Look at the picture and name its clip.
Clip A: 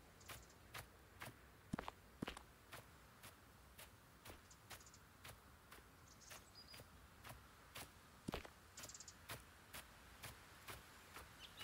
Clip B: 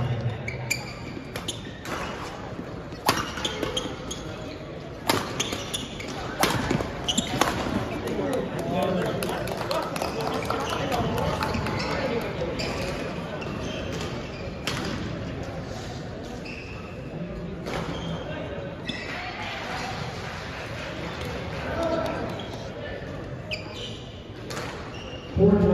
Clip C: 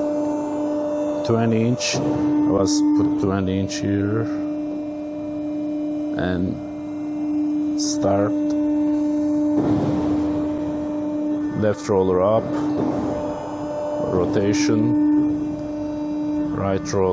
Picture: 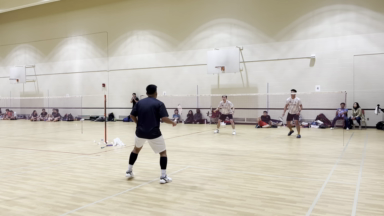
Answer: B